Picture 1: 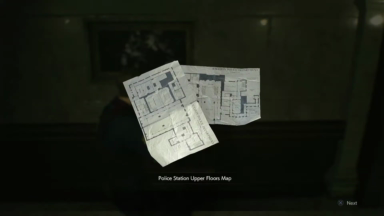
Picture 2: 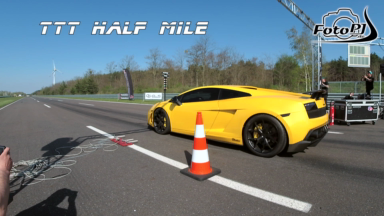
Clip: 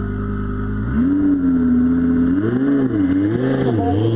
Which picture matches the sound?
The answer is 2